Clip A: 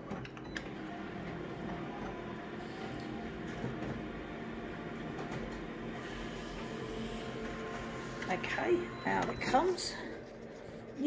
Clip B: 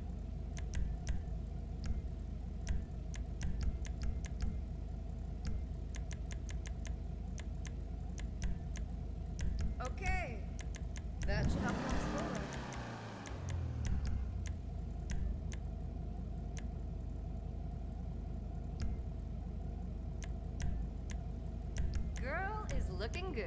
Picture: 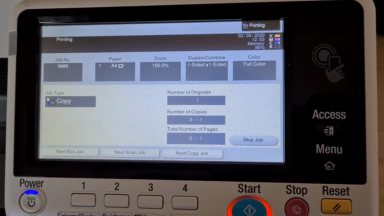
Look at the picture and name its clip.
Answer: A